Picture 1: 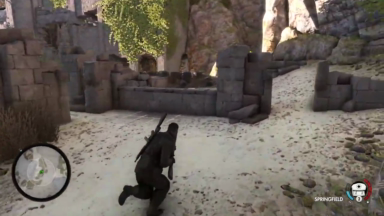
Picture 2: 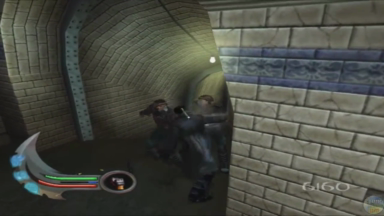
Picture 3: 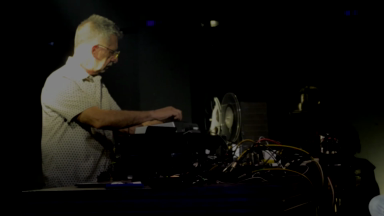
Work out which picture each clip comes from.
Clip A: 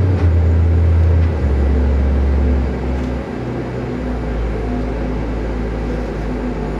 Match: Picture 3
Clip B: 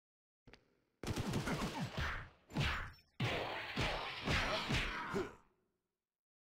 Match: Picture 2